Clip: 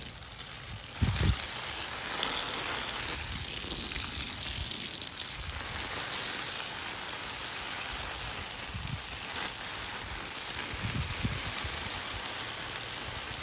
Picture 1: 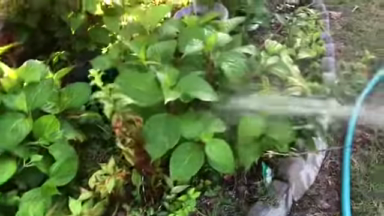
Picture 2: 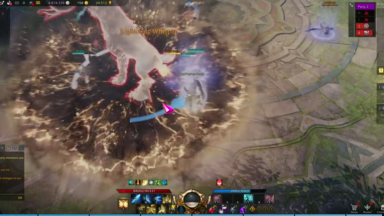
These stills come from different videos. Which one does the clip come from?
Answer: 1